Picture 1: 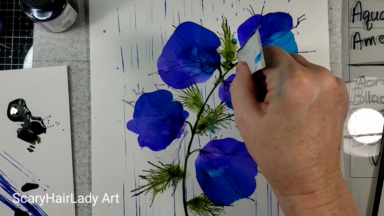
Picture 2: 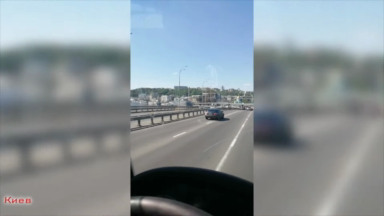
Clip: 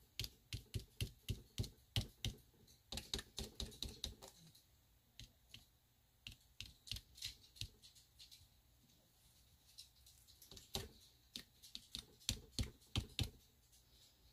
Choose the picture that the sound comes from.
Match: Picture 1